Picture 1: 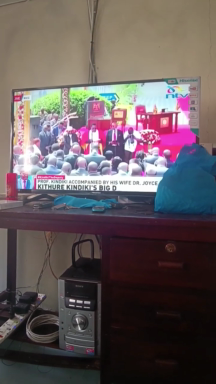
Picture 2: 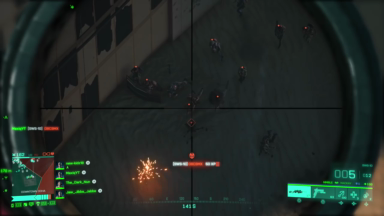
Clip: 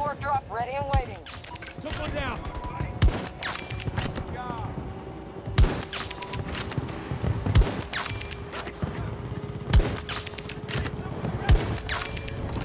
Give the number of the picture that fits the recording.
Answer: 2